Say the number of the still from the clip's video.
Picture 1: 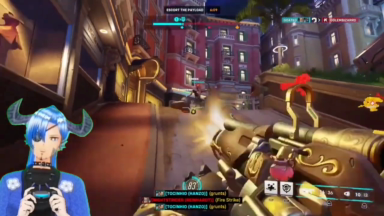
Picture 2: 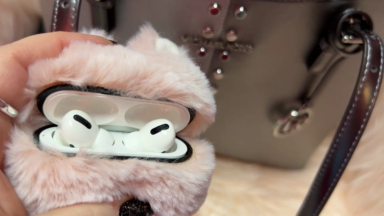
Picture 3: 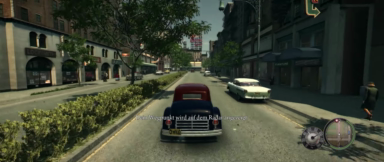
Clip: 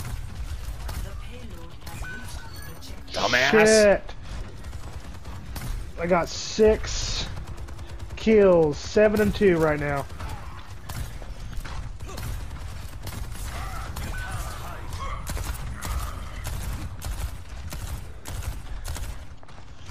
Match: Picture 1